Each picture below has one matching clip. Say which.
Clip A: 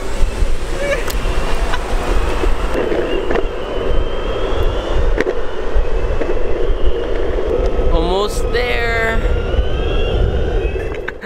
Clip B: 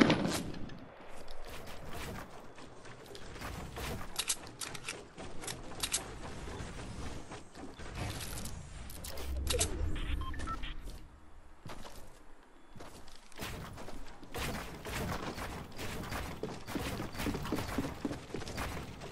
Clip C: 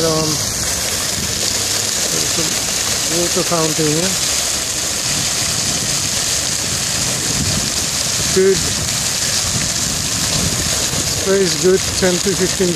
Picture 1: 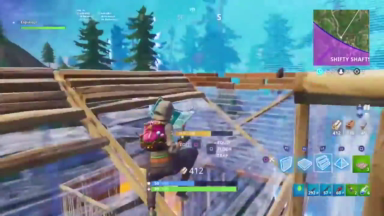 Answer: B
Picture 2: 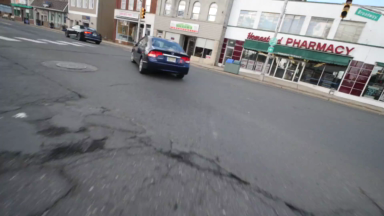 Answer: A